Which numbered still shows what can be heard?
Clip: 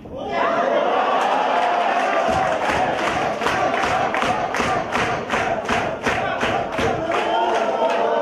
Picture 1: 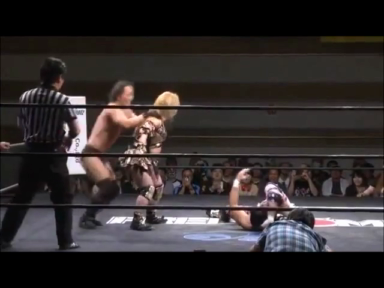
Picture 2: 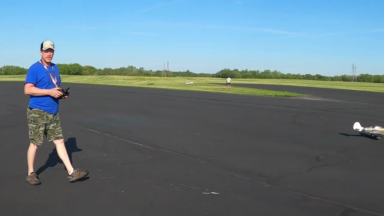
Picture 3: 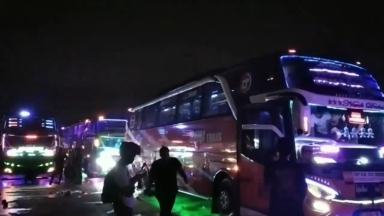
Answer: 1